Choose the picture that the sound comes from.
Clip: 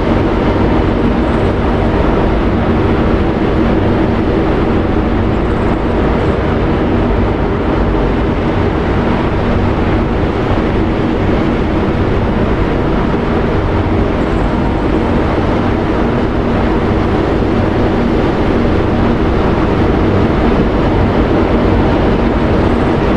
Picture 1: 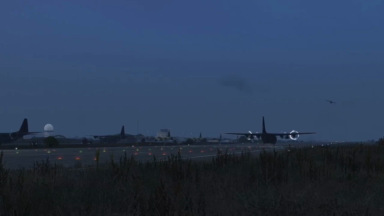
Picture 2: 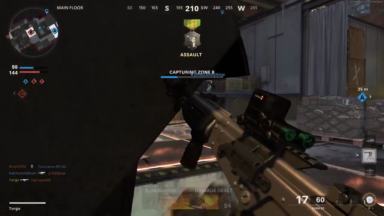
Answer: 1